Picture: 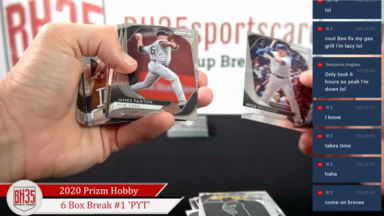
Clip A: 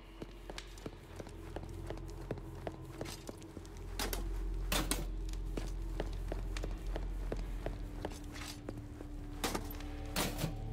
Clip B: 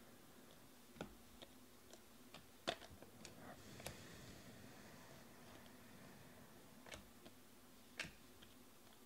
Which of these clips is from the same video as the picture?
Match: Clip B